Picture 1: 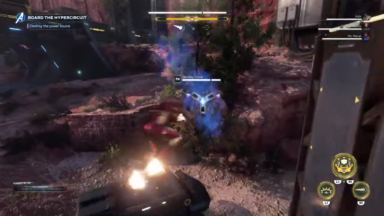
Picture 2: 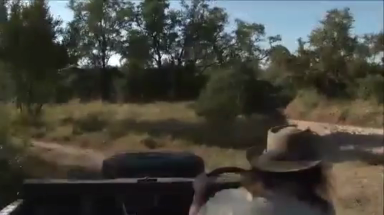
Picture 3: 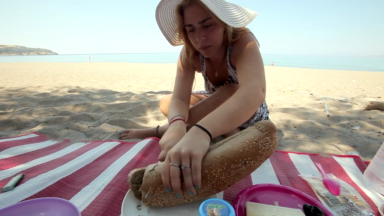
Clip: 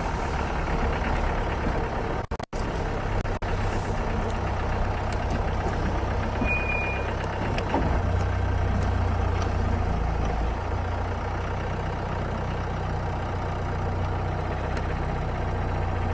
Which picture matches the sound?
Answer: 2